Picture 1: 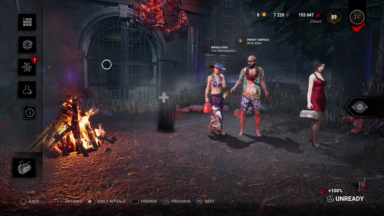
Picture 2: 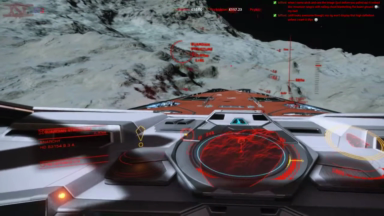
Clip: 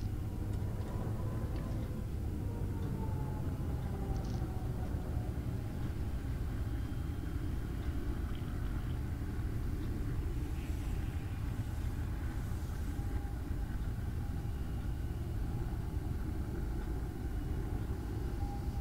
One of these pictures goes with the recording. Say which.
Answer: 2